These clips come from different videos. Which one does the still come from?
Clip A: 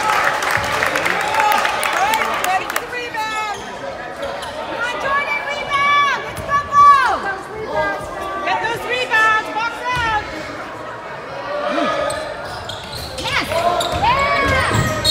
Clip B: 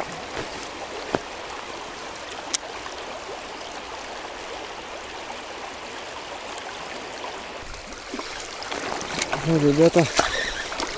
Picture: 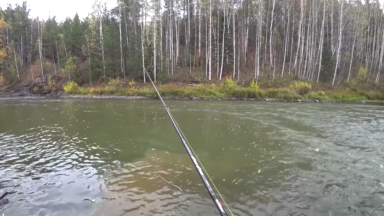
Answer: B